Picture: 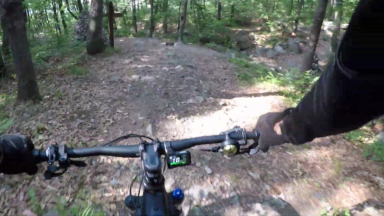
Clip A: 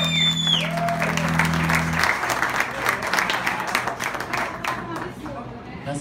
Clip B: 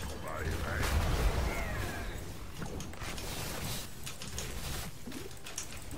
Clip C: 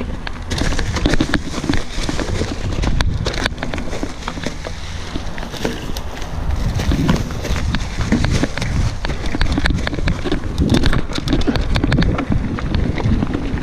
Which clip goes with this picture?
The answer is C